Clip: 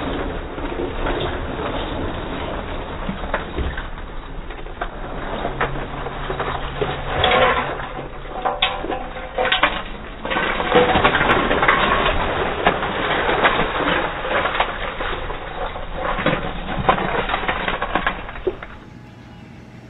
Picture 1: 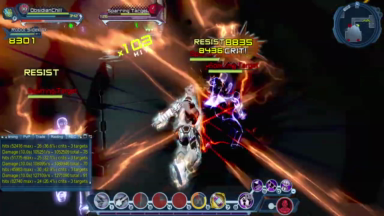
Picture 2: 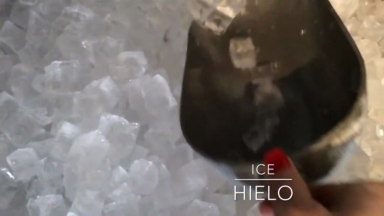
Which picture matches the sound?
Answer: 2